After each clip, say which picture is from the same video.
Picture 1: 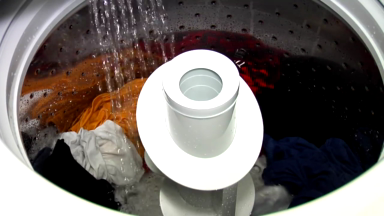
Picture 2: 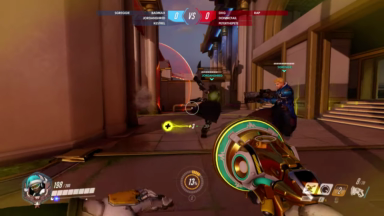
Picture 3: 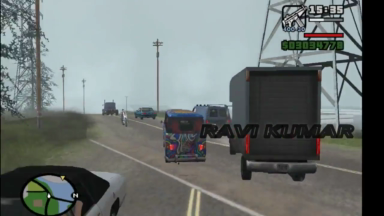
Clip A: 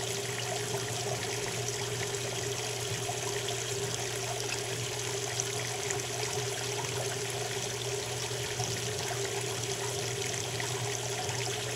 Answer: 1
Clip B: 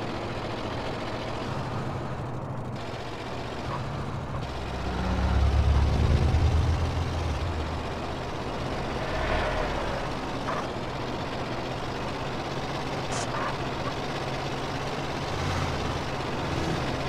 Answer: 3